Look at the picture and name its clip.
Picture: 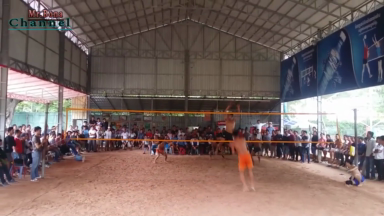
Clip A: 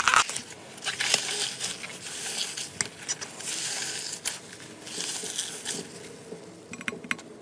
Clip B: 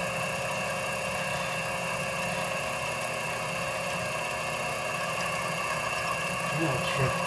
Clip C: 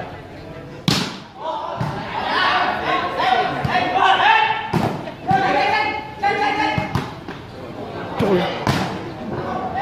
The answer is C